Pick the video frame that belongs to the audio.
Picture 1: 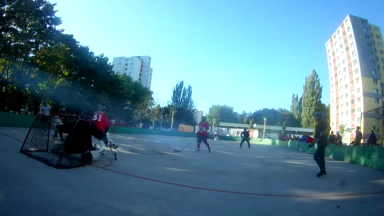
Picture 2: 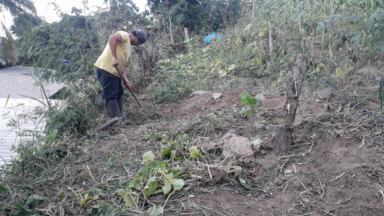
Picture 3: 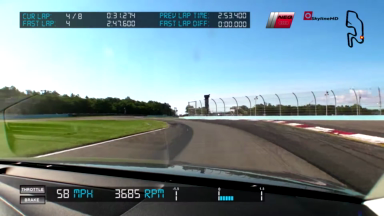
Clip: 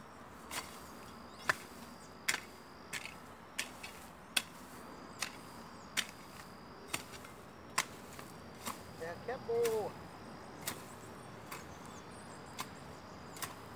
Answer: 2